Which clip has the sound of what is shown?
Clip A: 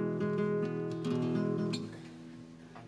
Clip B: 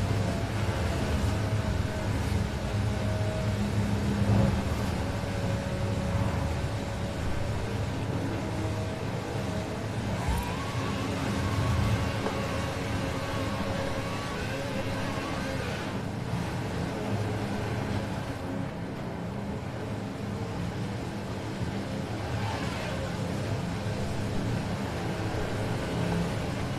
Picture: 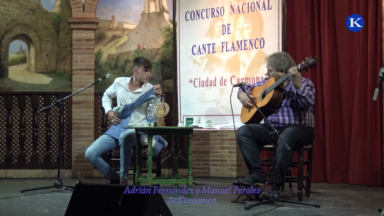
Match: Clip A